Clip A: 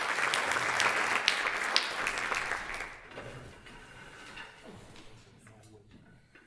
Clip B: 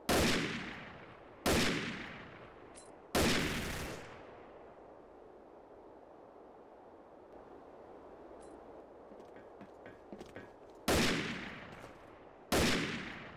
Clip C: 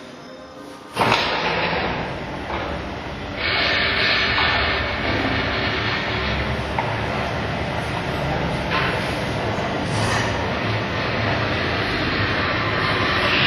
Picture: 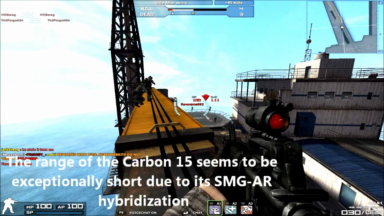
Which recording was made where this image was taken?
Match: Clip B